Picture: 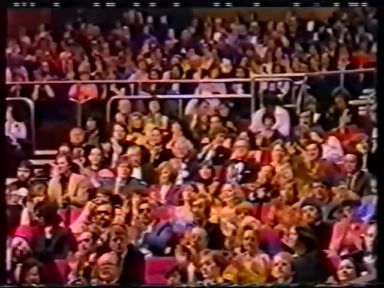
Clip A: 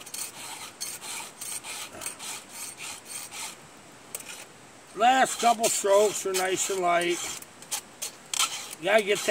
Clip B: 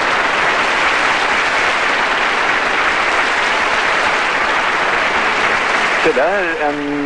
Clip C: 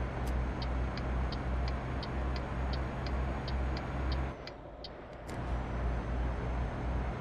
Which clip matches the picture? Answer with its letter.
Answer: B